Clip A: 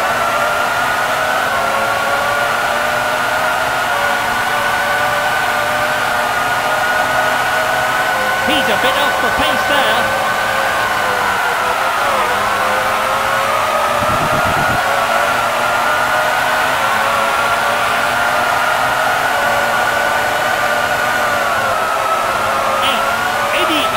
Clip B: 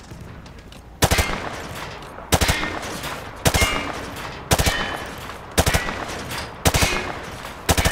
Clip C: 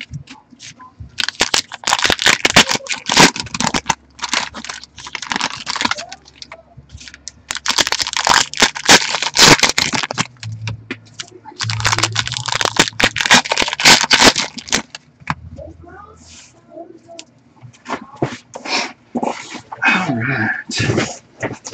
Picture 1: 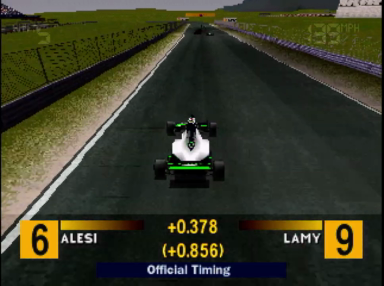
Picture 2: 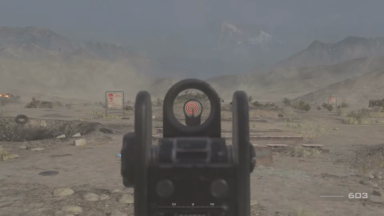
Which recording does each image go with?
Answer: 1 A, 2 B